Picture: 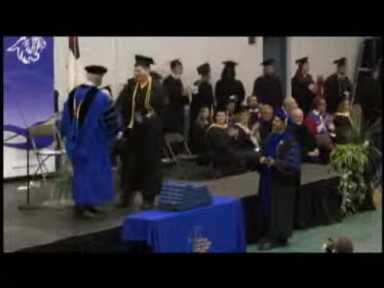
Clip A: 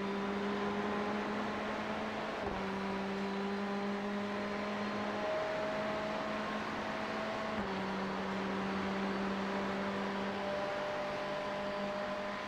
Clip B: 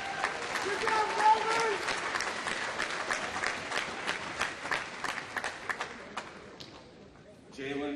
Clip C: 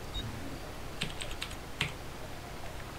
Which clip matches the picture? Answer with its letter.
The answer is B